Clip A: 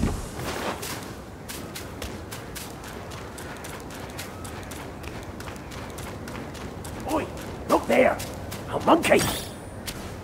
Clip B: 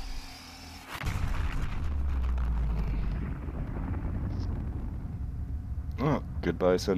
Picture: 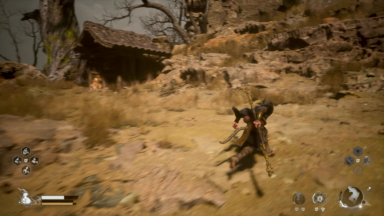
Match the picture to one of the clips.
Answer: A